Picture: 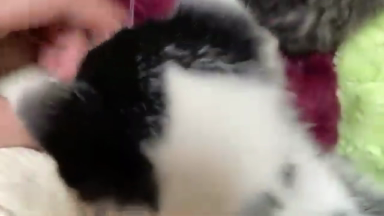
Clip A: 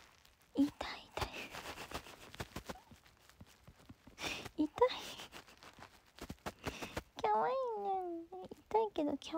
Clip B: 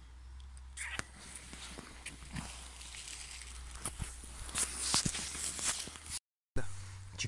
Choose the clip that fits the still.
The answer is A